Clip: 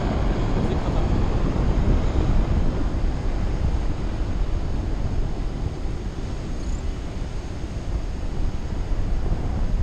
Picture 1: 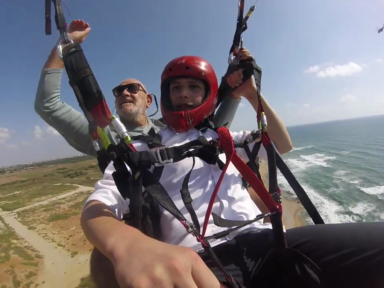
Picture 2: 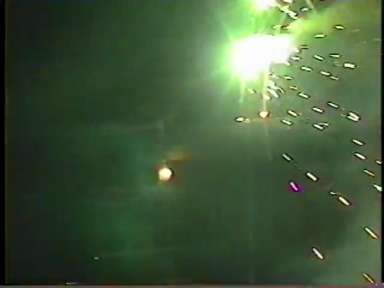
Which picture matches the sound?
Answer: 1